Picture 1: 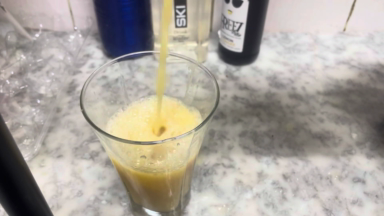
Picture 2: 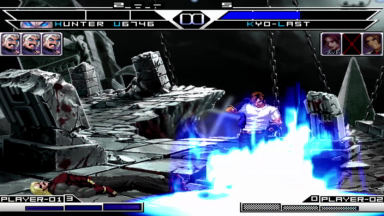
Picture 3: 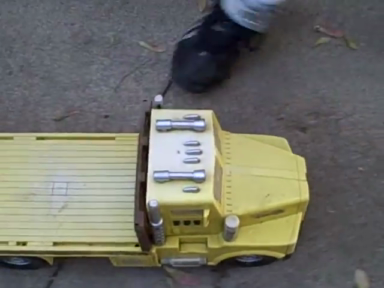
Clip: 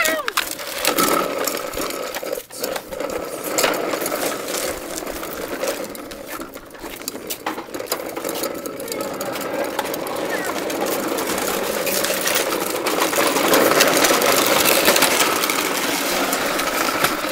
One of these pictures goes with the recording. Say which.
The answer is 3